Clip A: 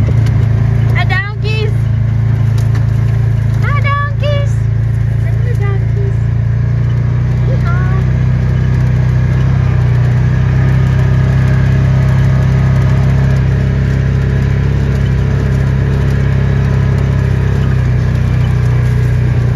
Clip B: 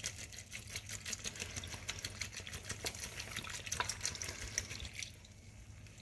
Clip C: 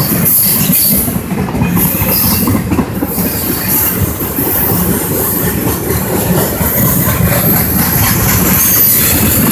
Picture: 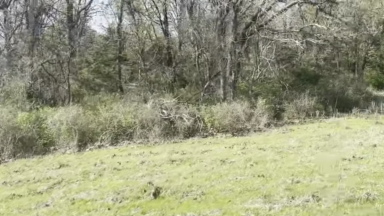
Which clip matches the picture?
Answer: A